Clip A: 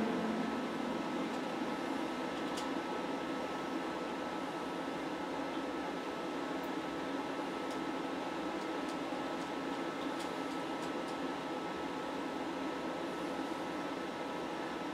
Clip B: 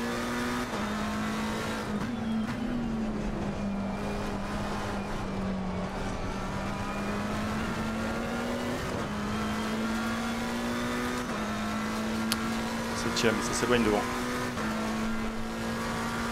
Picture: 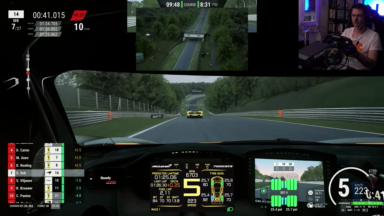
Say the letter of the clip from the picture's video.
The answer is B